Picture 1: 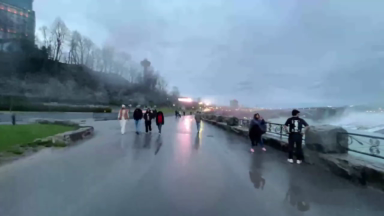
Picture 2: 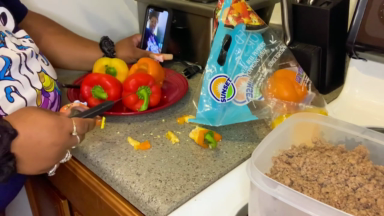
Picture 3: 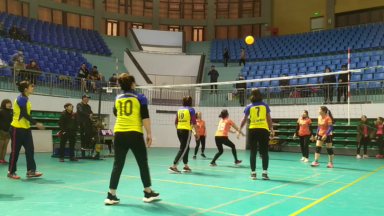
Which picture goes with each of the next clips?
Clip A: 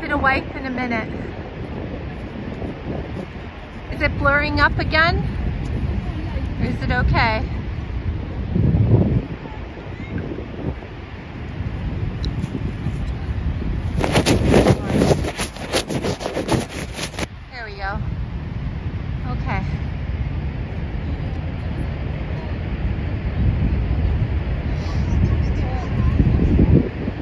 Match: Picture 1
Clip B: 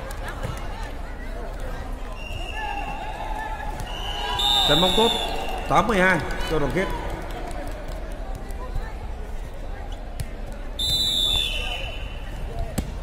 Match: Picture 3